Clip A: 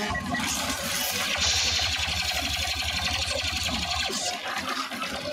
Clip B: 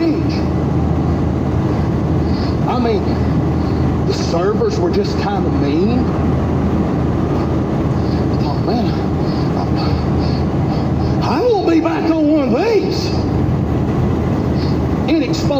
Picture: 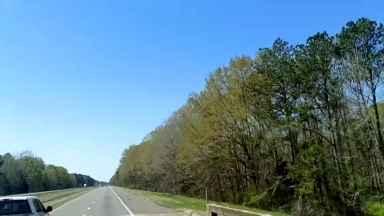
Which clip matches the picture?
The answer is B